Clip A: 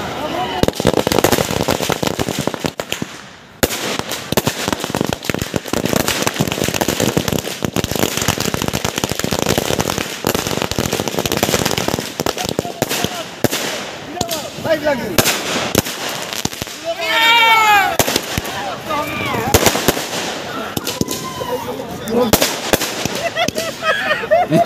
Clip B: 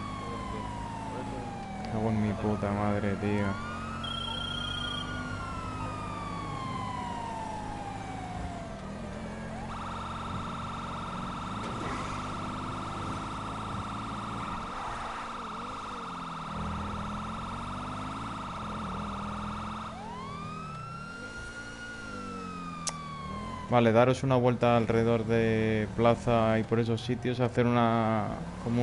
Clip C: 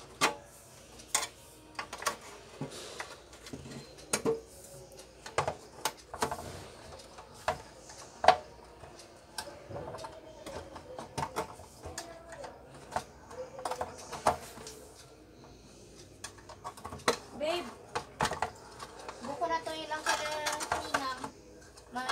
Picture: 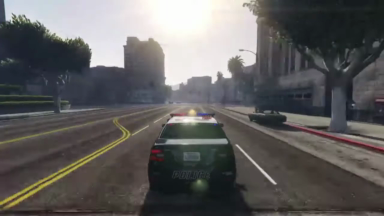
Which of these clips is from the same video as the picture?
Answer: B